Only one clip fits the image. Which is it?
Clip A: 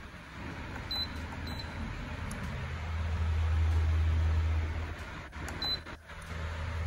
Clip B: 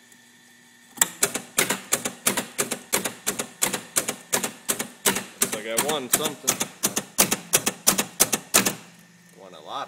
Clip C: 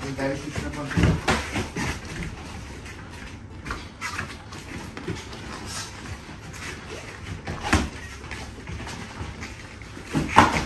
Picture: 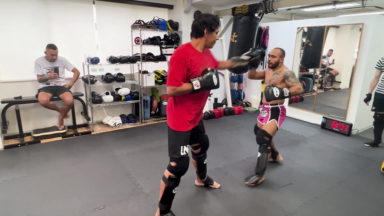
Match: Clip C